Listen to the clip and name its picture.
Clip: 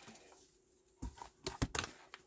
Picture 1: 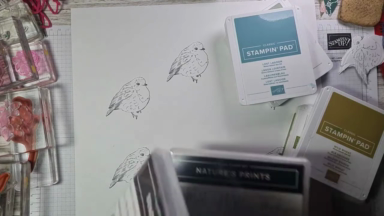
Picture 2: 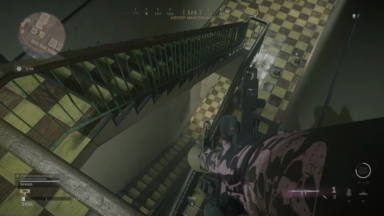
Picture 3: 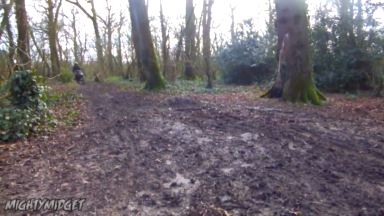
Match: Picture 1